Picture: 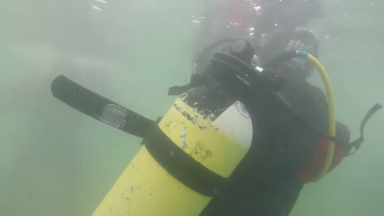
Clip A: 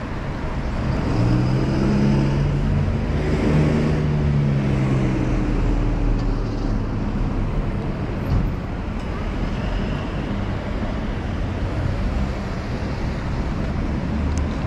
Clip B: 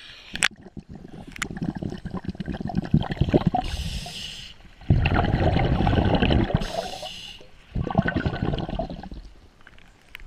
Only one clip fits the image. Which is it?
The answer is B